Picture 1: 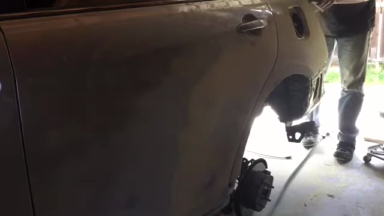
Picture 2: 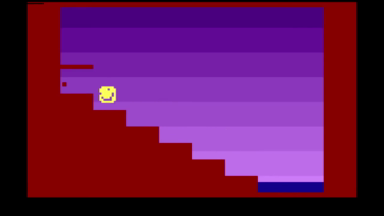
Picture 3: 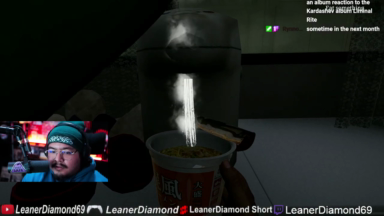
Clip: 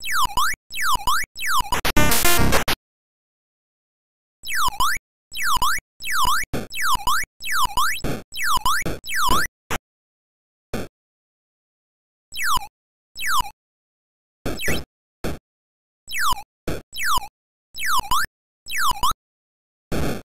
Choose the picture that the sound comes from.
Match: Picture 2